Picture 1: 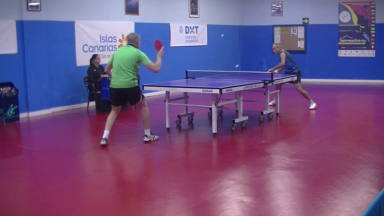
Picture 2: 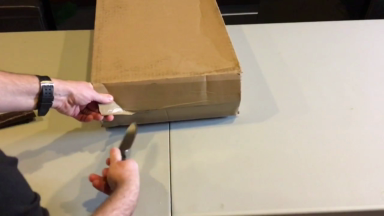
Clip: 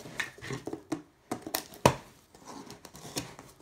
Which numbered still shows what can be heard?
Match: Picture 2